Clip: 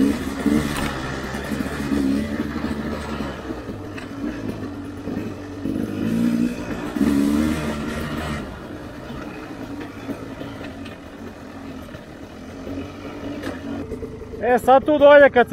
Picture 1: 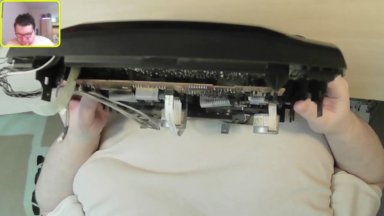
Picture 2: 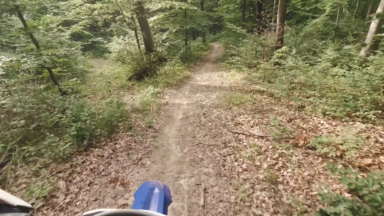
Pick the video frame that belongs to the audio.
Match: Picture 2